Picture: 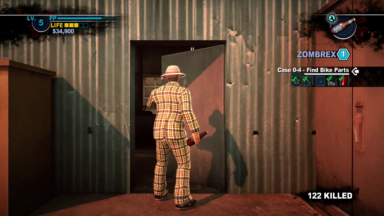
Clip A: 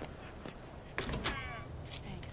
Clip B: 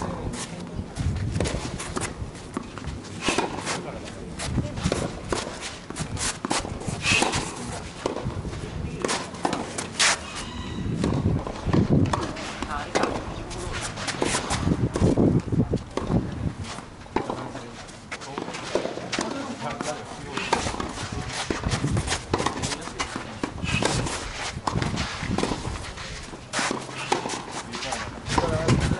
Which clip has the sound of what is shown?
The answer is A